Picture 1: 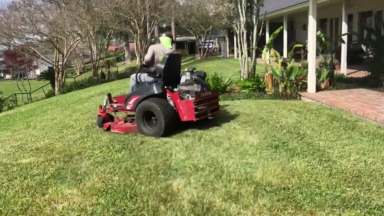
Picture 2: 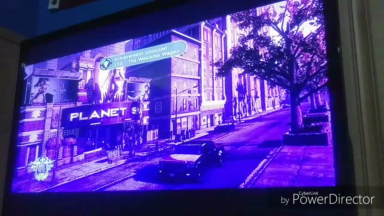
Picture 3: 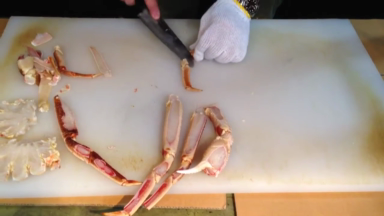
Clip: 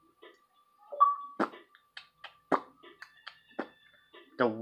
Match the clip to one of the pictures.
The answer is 2